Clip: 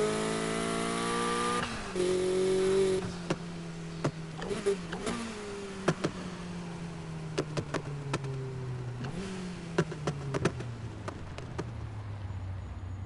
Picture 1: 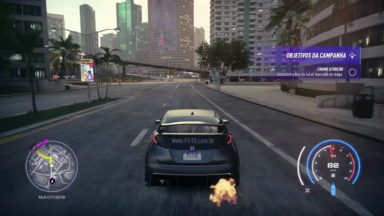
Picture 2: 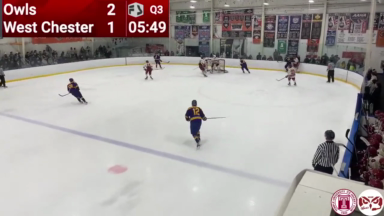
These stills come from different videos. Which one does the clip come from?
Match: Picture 1